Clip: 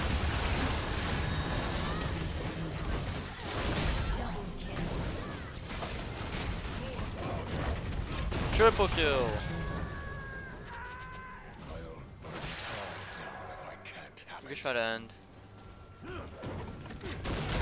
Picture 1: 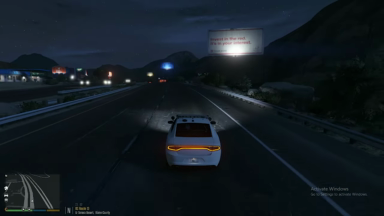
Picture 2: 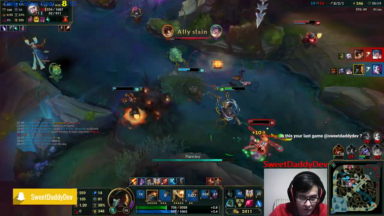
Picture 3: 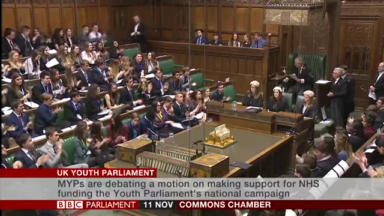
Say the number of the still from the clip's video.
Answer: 2